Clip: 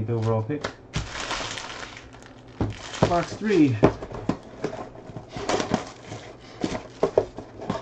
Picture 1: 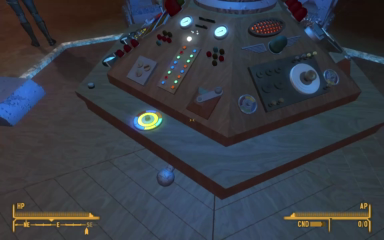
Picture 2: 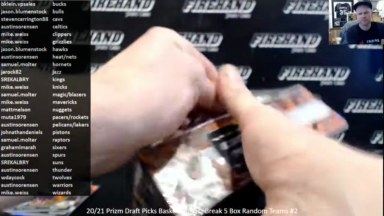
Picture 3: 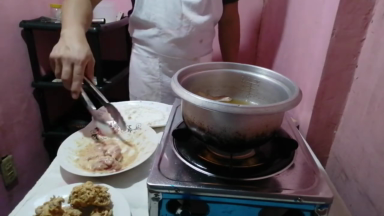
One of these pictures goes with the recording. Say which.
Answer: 2